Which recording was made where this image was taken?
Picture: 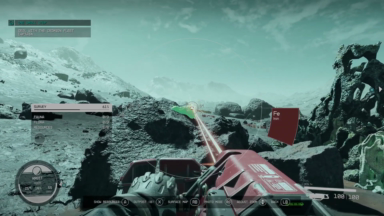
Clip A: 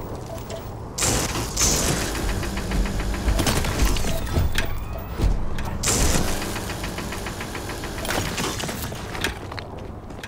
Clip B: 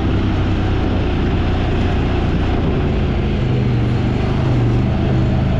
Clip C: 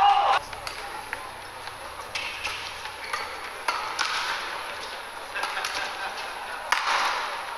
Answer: A